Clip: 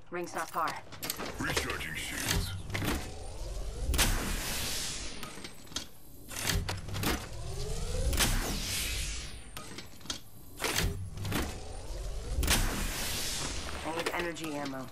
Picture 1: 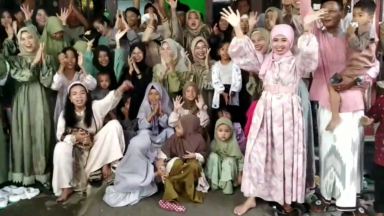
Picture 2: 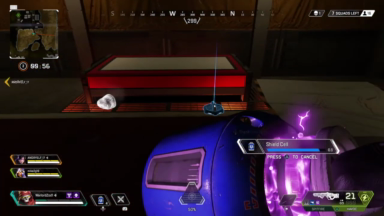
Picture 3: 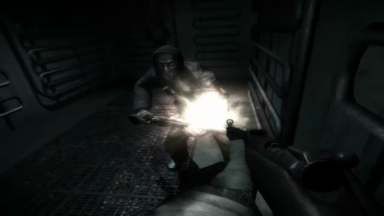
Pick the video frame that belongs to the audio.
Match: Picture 2